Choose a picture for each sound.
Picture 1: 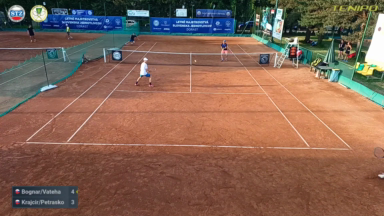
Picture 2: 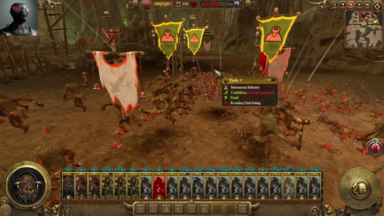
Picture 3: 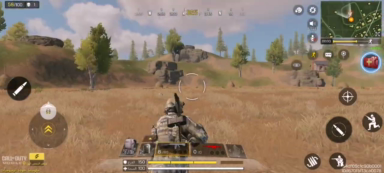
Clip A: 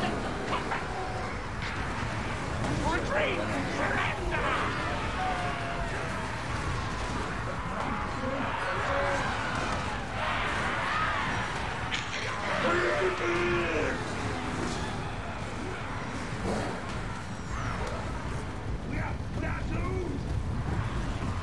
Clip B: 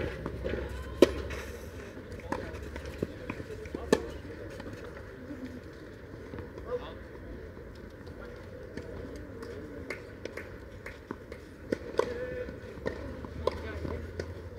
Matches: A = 2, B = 1